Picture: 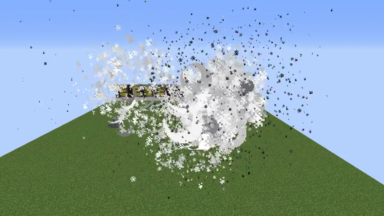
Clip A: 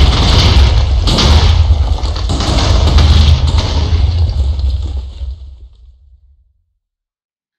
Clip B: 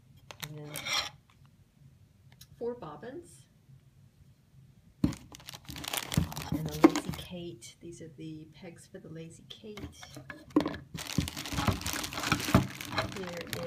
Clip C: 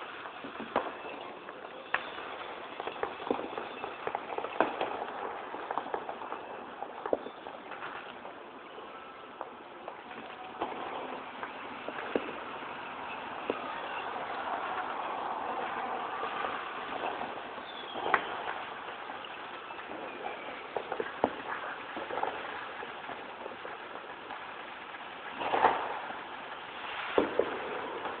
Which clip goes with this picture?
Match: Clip A